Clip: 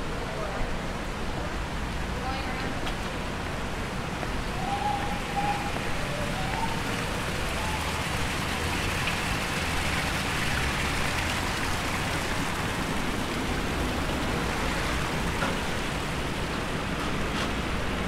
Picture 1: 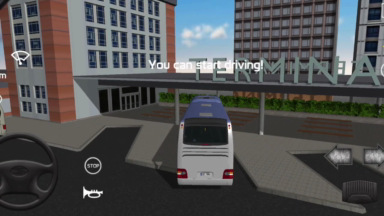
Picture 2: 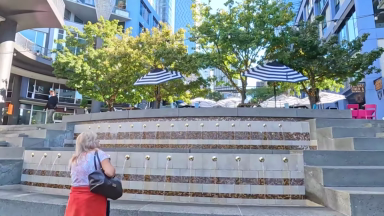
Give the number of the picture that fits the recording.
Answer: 2